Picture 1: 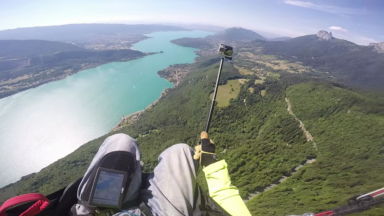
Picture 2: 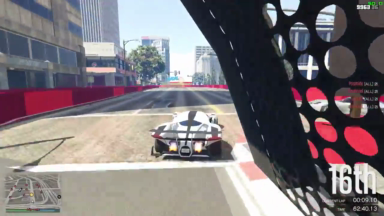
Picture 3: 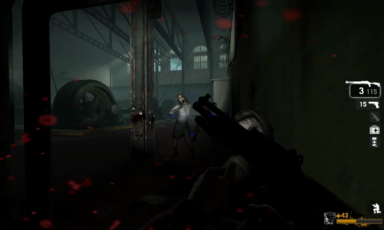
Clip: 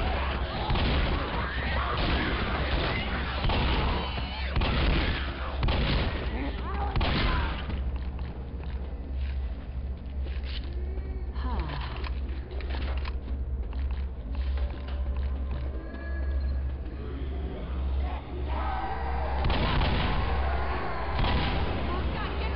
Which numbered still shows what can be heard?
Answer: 3